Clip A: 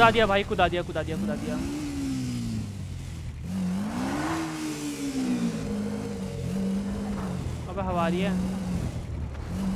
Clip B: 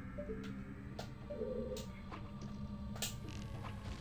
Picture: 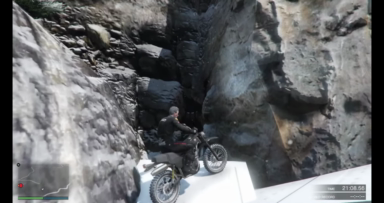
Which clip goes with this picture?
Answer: A